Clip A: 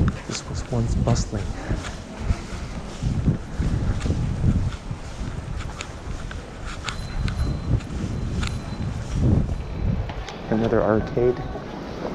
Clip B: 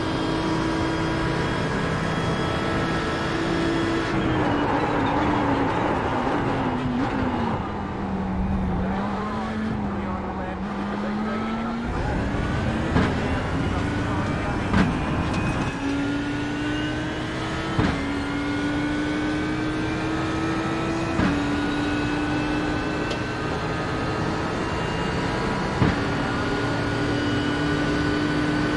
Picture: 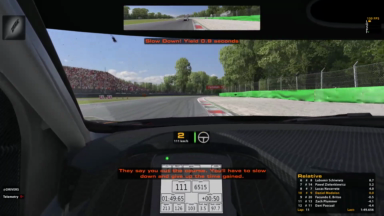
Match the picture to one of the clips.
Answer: B